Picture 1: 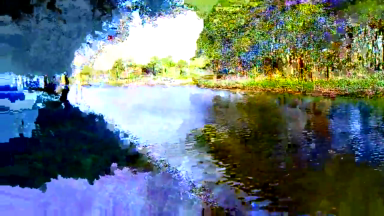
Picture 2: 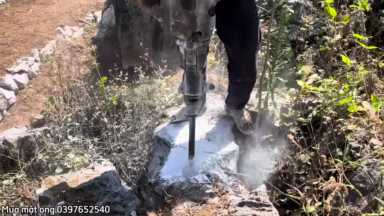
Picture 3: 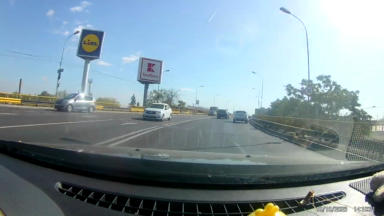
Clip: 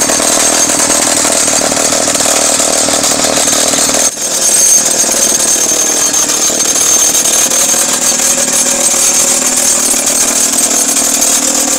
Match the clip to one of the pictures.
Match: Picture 2